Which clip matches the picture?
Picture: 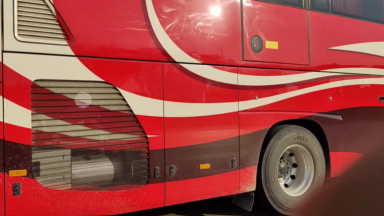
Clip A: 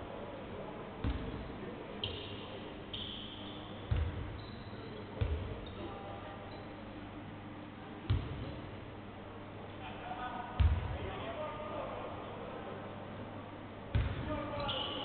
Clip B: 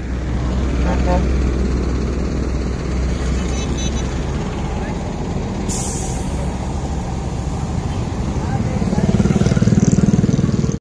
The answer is B